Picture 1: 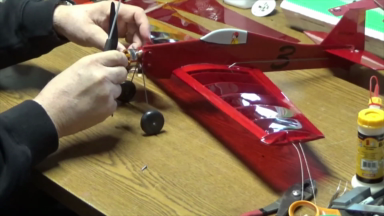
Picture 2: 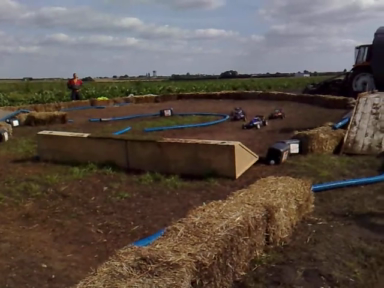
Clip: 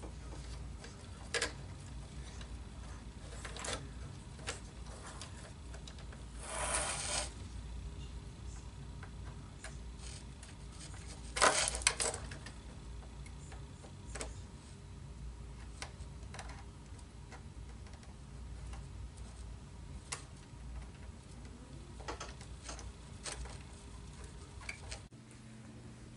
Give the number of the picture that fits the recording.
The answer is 1